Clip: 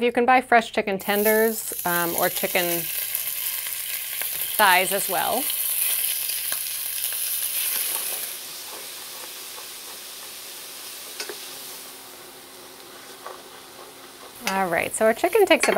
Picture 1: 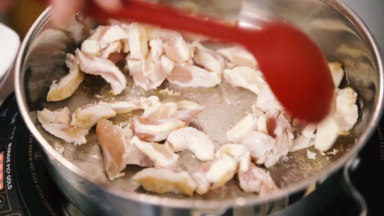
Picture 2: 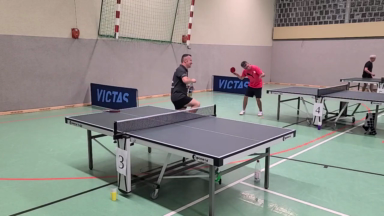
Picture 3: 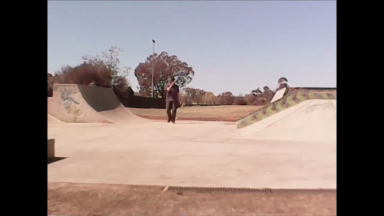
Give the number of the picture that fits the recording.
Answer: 1